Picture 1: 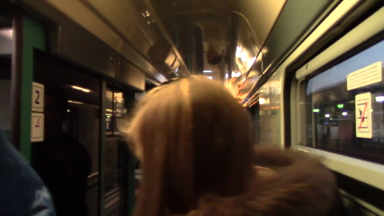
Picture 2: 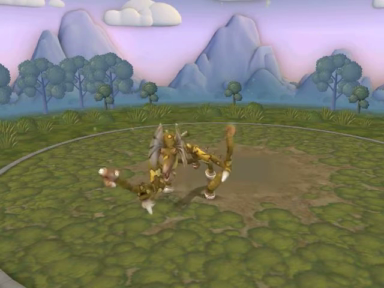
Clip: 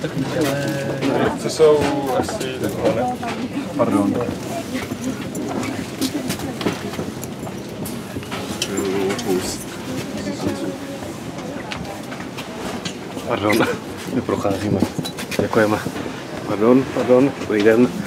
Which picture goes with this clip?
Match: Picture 1